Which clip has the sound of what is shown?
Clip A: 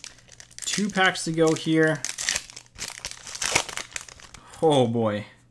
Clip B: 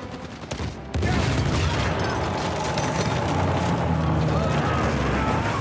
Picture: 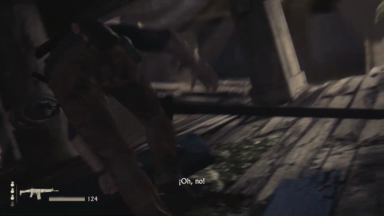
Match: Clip B